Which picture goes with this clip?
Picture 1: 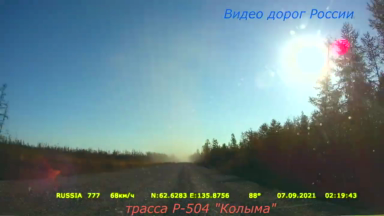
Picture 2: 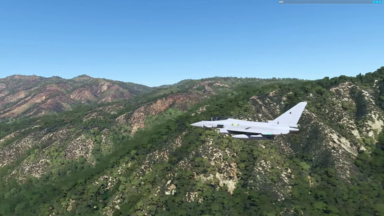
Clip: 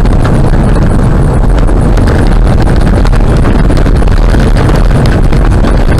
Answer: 1